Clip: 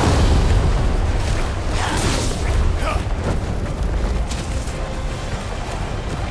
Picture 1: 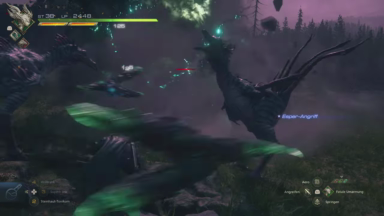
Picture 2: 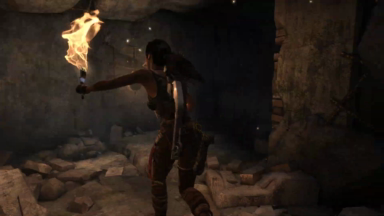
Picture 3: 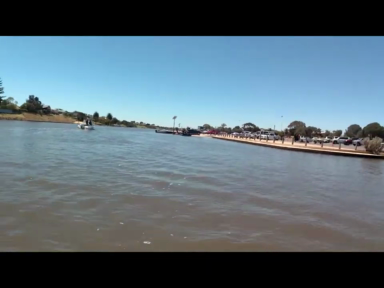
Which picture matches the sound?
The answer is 1